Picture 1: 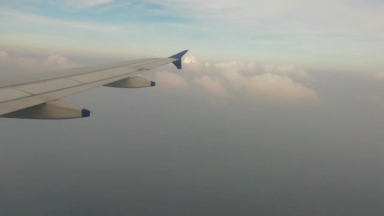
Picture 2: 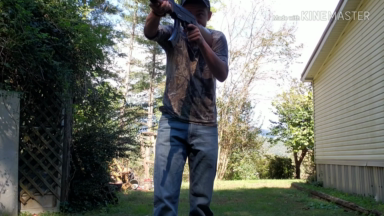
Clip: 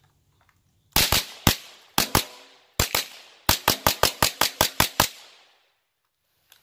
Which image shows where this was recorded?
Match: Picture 2